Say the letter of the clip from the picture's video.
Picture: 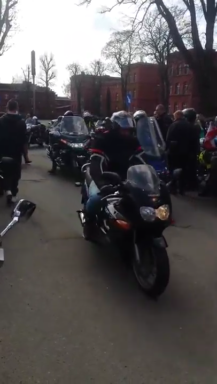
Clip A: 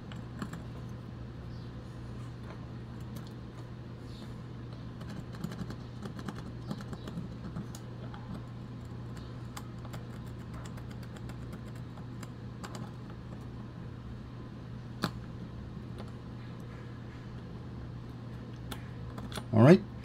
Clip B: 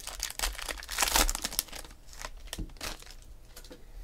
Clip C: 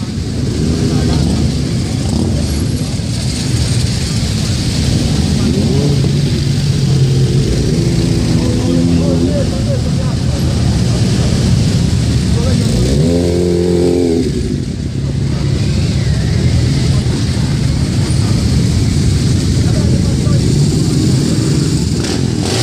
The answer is C